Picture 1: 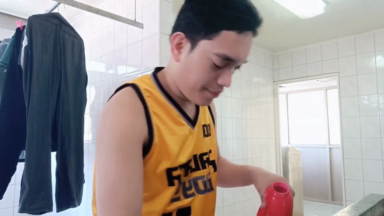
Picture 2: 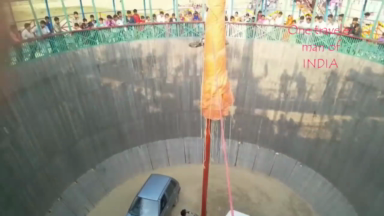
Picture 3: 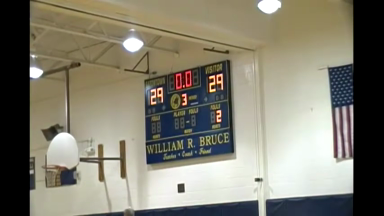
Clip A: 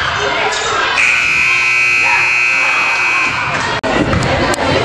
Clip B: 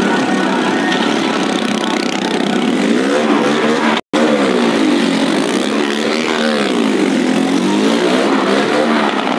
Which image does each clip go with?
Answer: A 3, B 2